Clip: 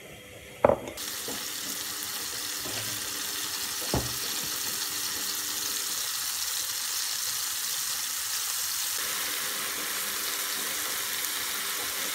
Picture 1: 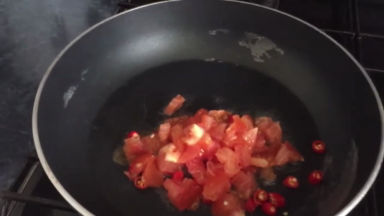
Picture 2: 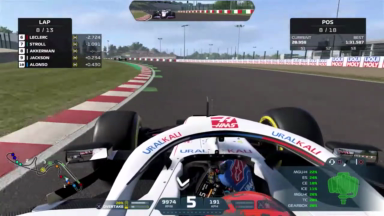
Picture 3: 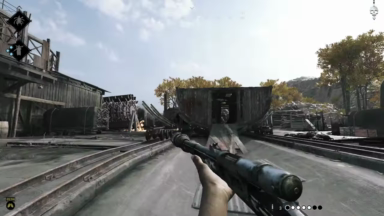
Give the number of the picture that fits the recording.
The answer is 1